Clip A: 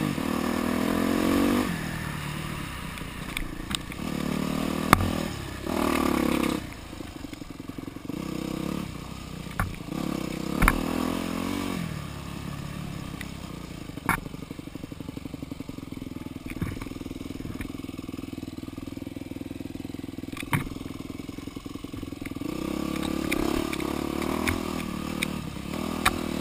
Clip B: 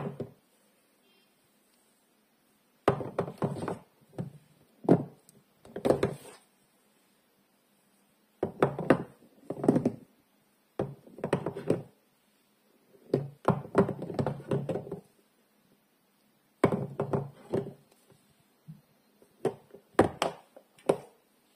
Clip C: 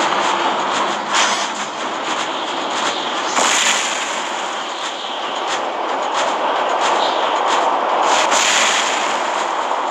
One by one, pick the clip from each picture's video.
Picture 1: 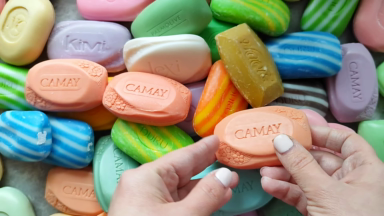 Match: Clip B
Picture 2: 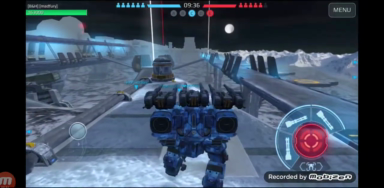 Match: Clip C